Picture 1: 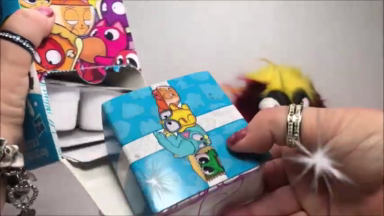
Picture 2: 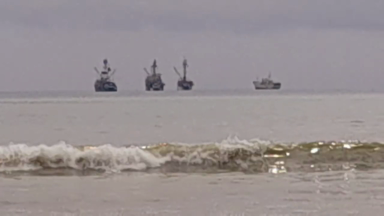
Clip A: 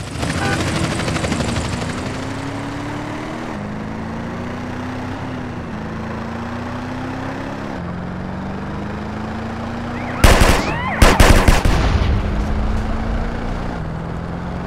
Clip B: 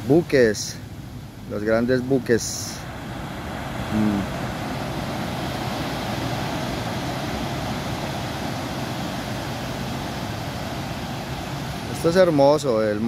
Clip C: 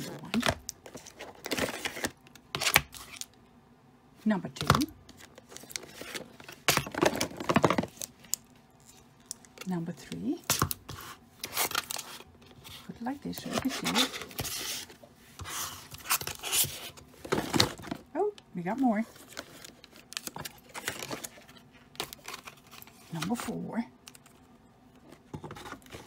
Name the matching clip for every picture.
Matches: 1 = C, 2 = B